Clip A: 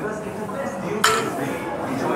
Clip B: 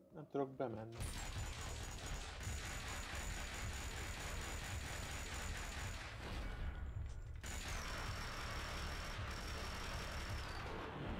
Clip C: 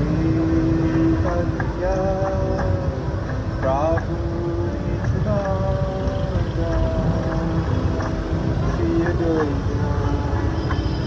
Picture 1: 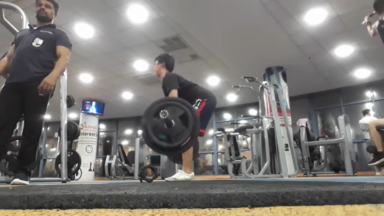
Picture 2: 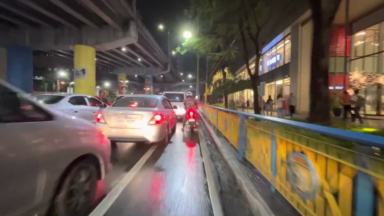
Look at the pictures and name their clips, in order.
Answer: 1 A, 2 C